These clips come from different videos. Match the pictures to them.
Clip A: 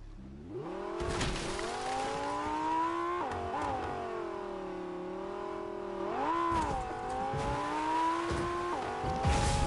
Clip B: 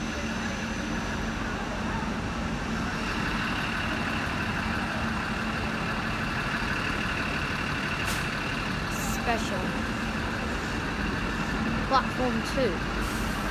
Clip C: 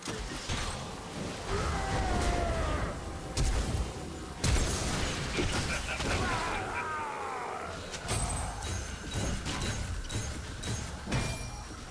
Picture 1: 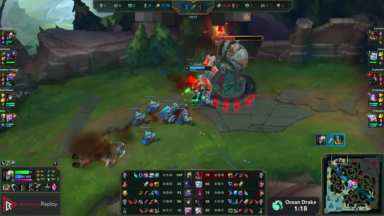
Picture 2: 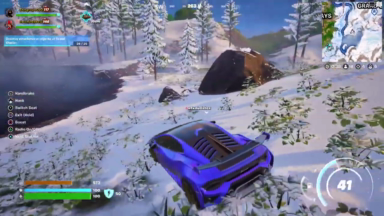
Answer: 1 C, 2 A